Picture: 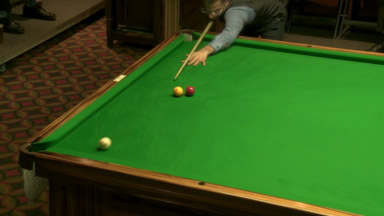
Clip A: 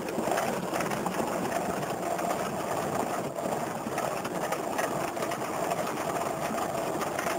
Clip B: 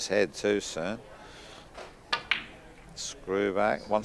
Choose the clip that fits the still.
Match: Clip B